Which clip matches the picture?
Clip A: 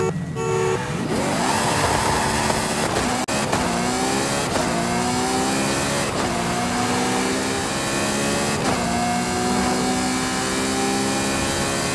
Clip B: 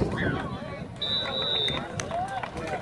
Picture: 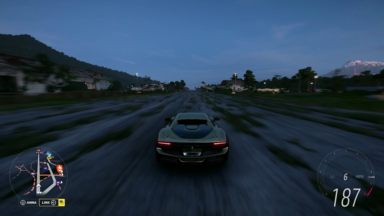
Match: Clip A